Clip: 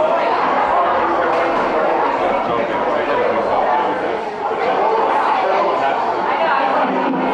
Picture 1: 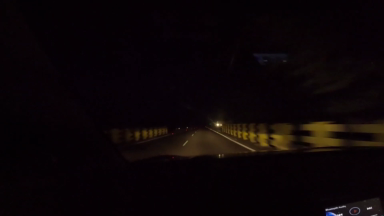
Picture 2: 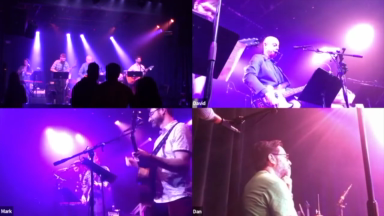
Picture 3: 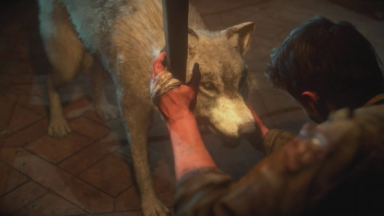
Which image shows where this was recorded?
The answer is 2